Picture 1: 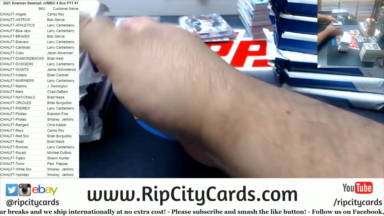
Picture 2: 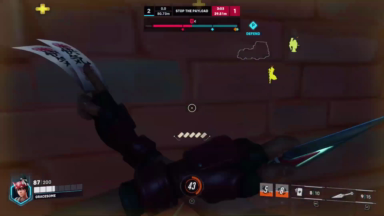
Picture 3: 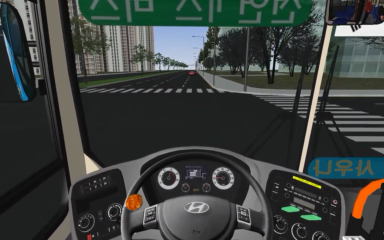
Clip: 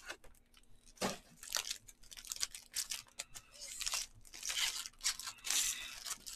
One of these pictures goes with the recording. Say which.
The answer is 1